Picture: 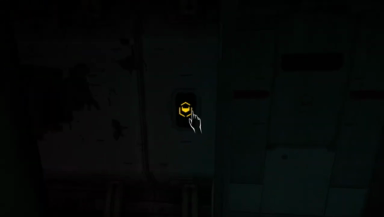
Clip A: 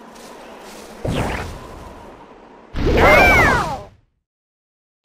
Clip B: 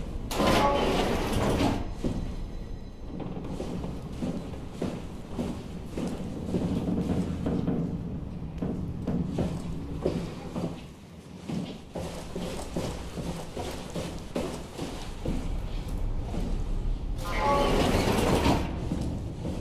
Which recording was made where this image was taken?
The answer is B